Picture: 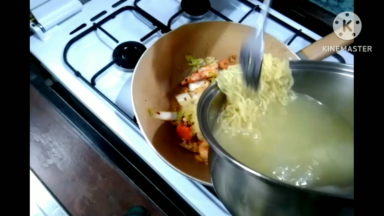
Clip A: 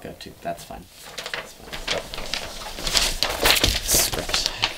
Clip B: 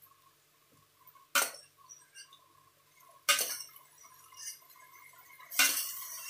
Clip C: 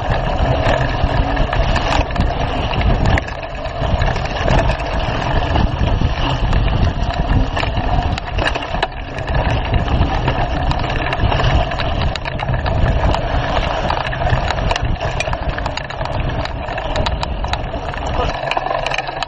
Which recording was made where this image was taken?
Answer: B